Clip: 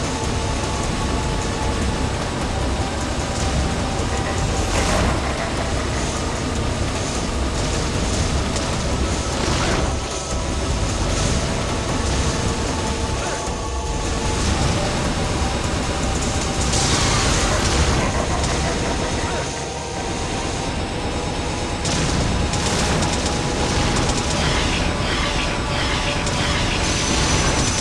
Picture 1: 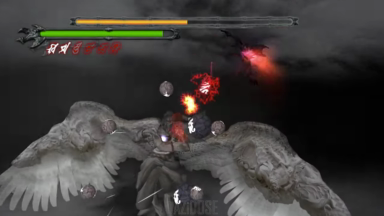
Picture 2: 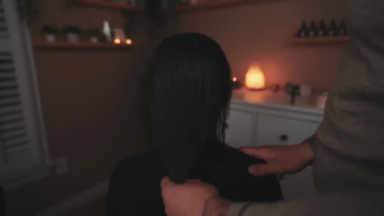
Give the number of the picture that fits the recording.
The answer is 1